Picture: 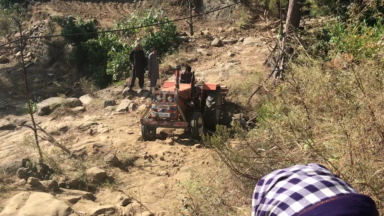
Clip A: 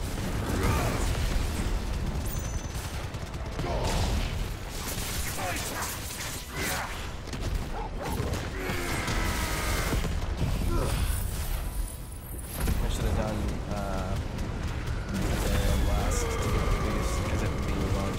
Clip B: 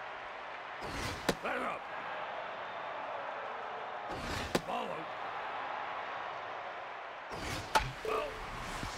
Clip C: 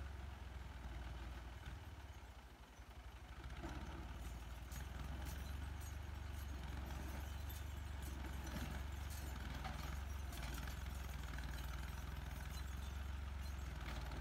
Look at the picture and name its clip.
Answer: C